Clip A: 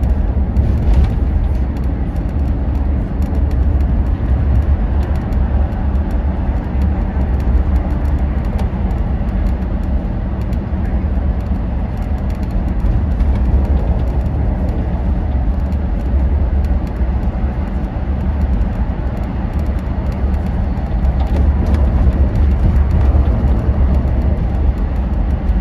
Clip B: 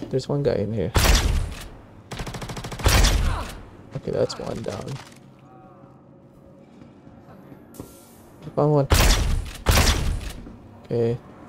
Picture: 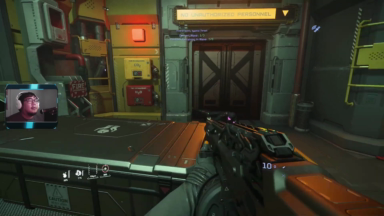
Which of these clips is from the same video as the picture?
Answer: B